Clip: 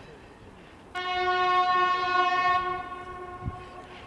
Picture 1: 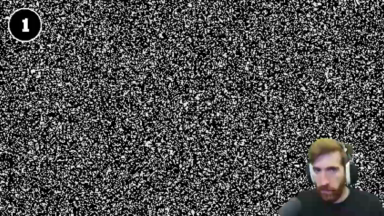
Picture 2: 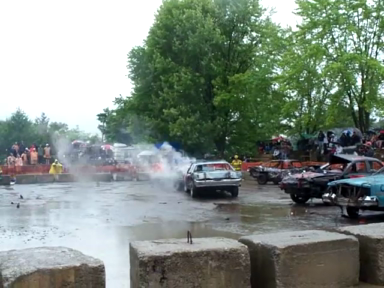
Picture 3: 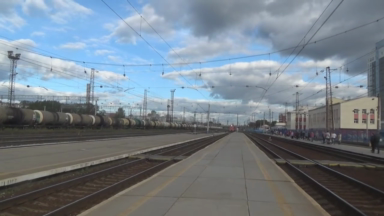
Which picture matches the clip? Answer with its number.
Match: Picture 3